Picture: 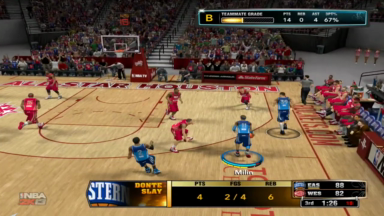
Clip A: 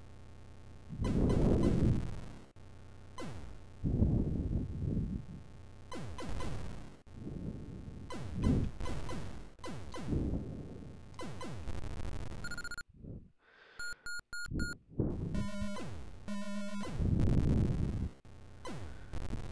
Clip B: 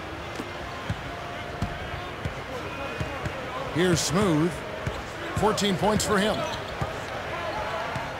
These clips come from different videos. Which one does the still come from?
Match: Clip B